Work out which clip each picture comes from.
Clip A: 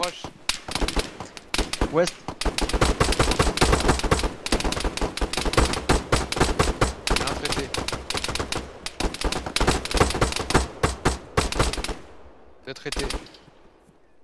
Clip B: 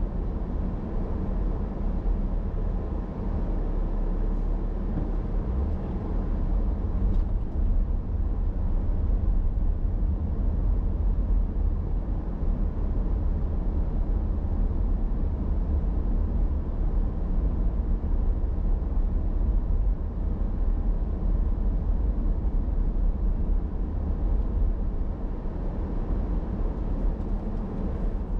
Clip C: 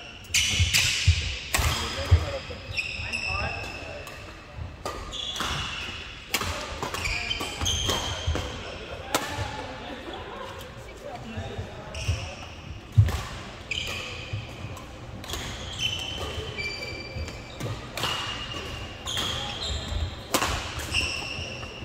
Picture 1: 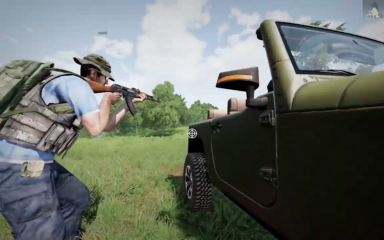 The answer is A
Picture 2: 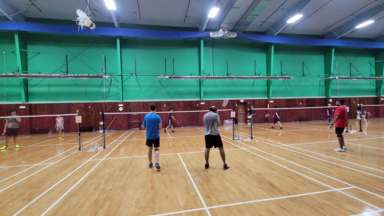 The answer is C